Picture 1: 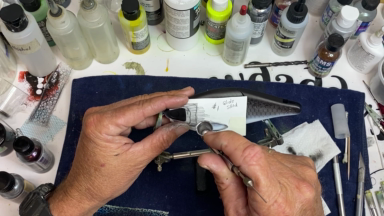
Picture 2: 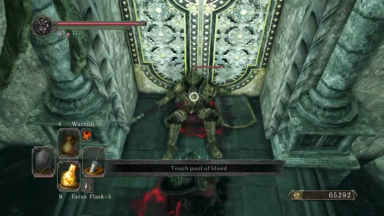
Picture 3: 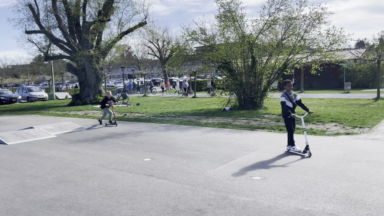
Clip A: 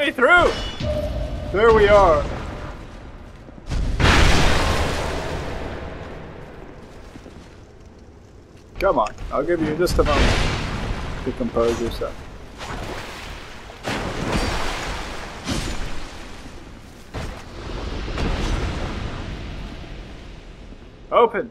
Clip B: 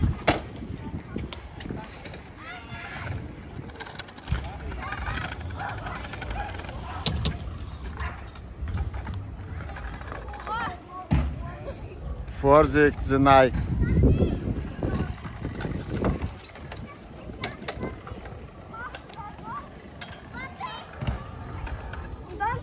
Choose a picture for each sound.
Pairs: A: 2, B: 3